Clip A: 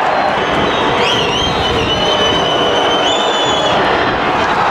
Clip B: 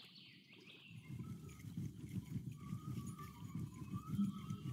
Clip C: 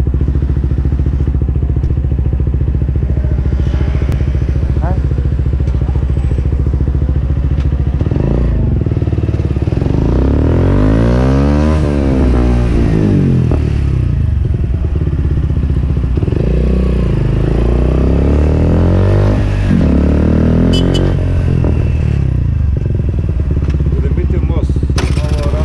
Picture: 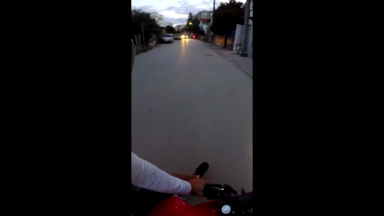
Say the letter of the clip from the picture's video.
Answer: C